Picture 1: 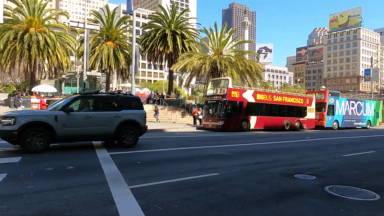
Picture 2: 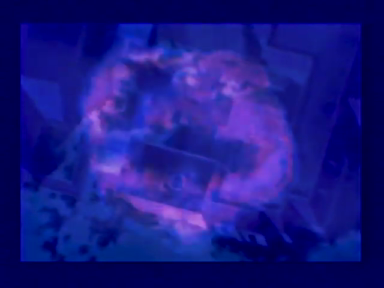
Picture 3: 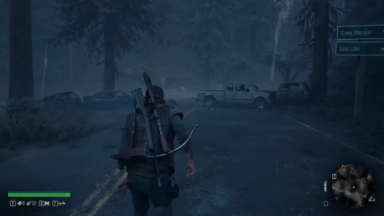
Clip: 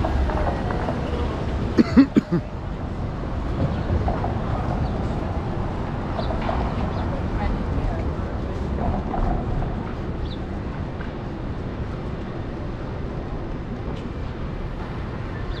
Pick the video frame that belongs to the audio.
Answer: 1